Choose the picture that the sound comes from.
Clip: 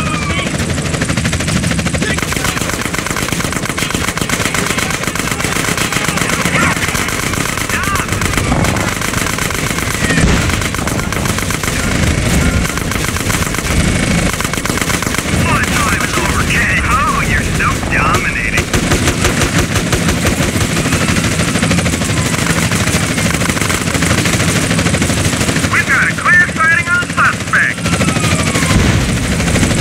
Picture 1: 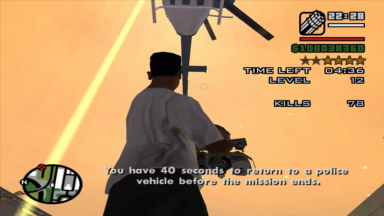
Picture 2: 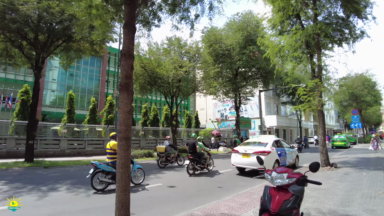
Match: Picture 1